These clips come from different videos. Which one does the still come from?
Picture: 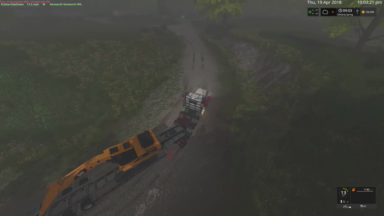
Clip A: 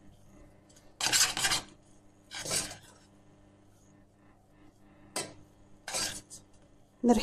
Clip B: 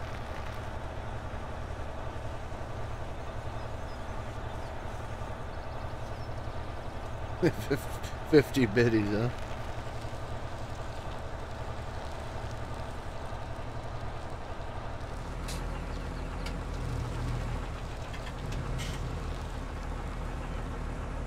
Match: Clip B